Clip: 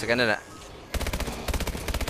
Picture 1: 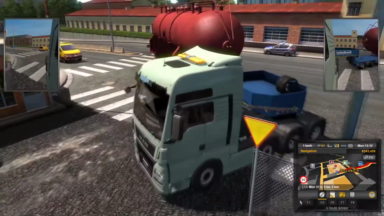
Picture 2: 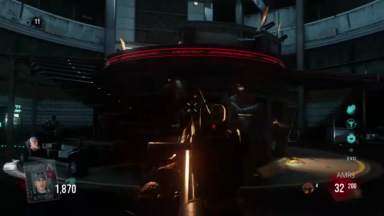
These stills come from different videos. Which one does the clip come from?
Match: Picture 2